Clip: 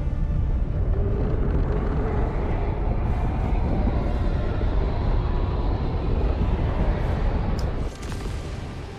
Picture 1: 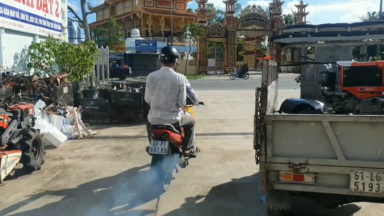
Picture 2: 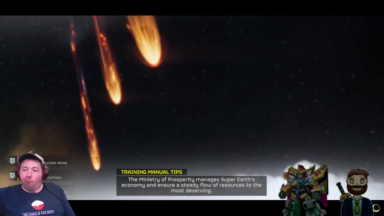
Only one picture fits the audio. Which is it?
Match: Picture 2